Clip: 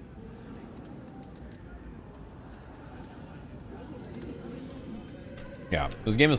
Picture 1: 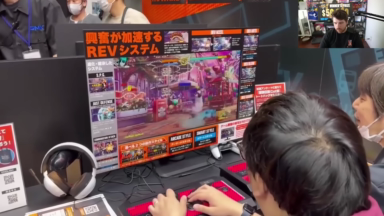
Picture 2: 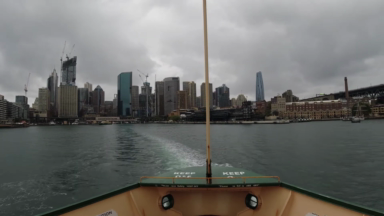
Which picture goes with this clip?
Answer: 1